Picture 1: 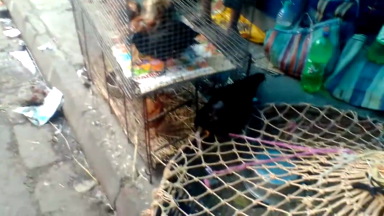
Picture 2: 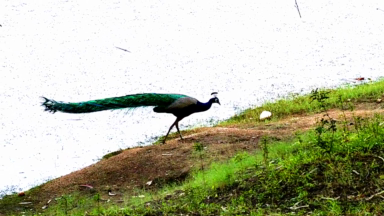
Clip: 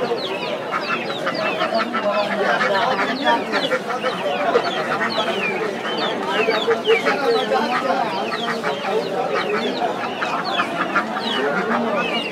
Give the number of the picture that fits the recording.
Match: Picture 1